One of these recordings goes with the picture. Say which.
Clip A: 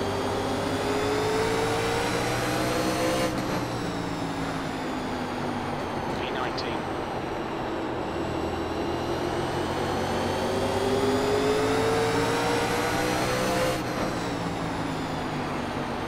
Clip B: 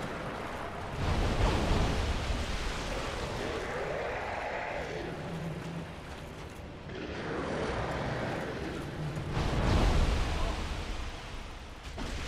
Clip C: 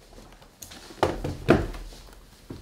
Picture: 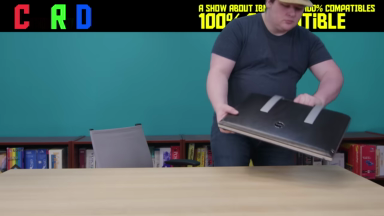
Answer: C